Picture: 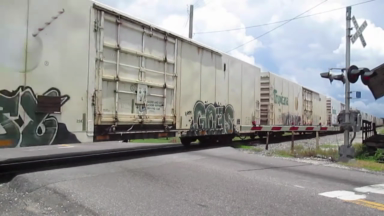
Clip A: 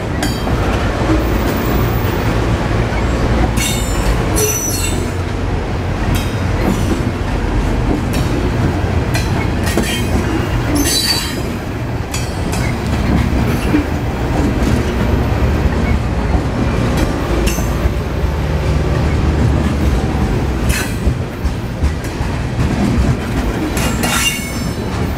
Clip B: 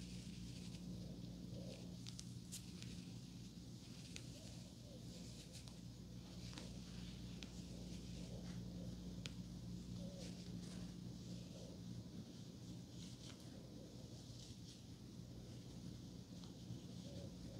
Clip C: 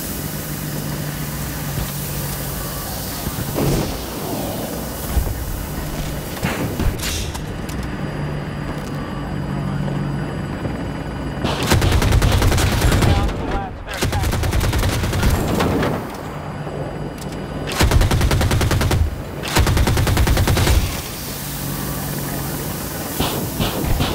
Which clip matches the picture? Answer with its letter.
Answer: A